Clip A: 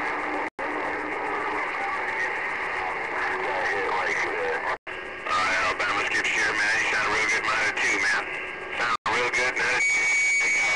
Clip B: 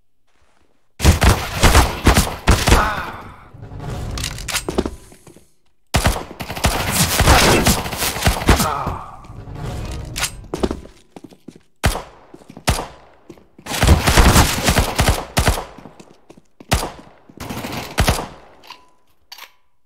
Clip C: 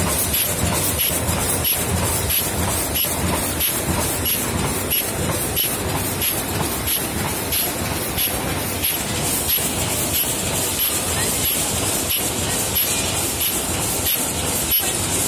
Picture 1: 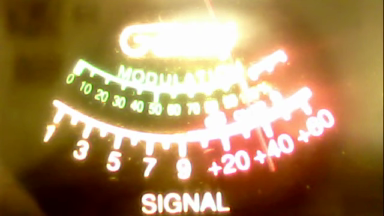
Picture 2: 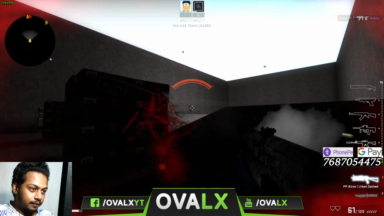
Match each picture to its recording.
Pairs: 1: A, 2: B